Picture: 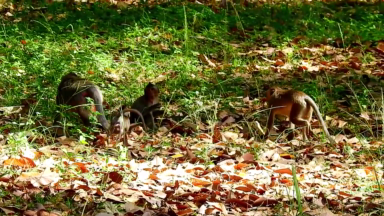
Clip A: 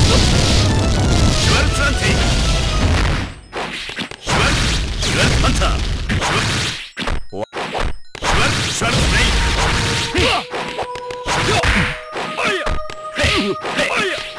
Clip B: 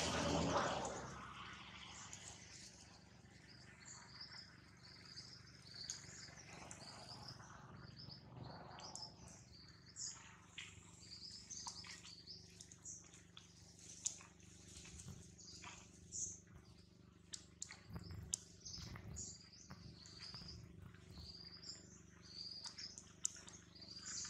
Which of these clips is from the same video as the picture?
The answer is B